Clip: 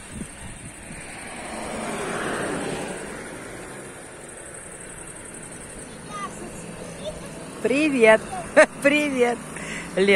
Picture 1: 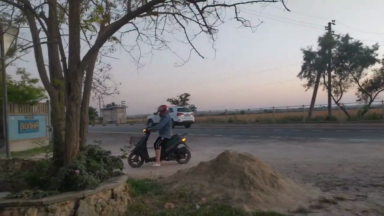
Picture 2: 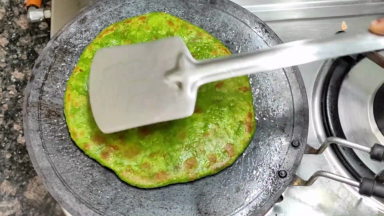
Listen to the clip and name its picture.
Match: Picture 1